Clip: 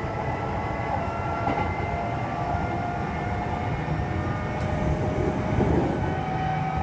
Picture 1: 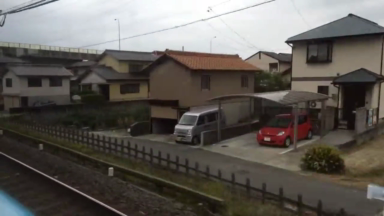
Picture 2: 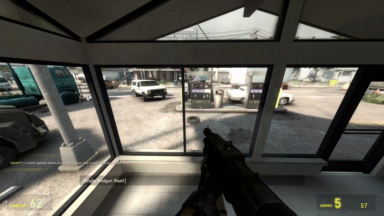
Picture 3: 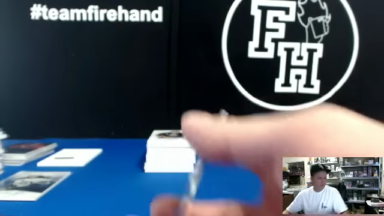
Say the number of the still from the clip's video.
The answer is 1